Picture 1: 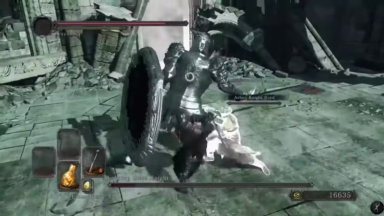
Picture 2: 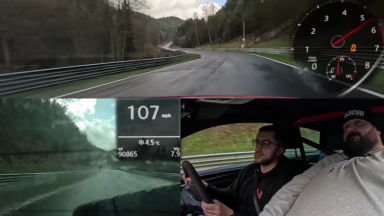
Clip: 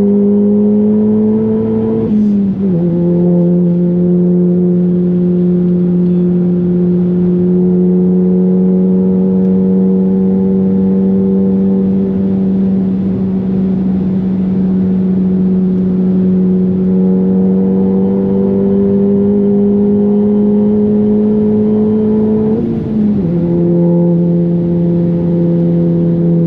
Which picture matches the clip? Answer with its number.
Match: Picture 2